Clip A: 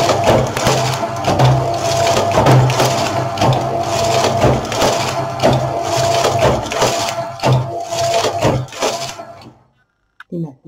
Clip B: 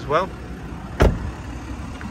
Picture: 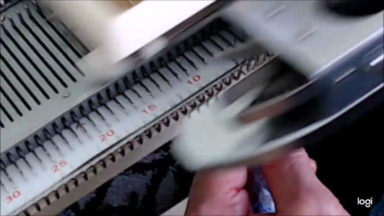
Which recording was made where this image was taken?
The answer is A